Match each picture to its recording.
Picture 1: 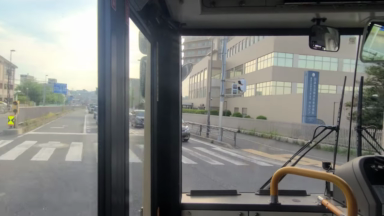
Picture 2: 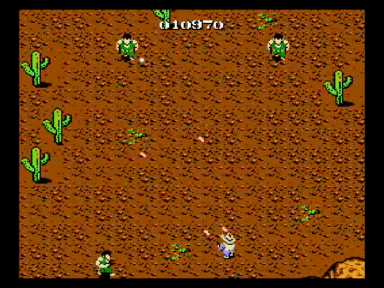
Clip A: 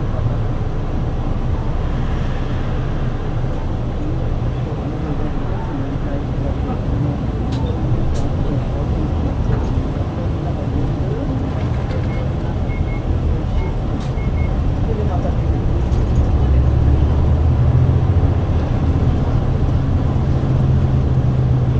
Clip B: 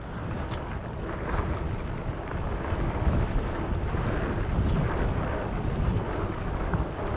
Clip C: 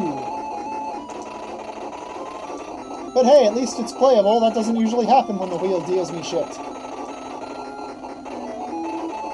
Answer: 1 A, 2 C